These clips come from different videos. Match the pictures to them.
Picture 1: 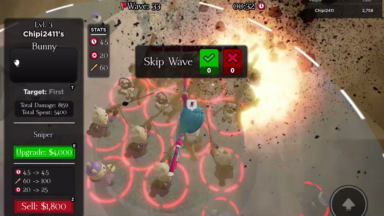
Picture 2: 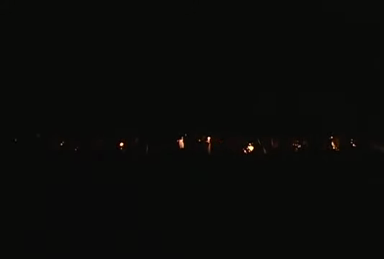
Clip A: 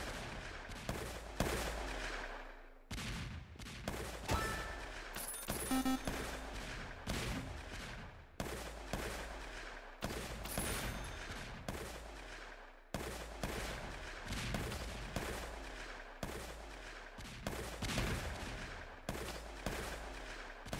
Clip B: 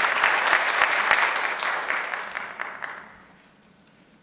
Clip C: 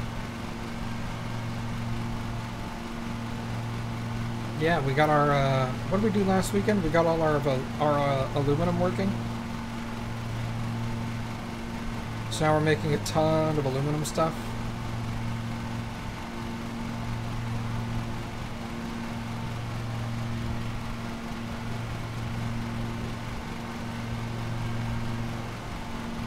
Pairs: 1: A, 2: B